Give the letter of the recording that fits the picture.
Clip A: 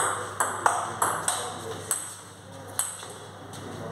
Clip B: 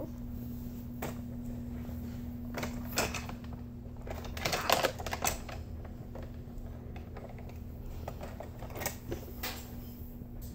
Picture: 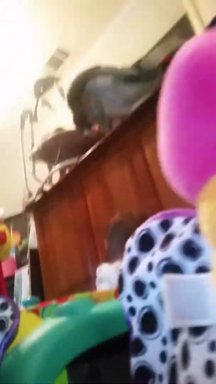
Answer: B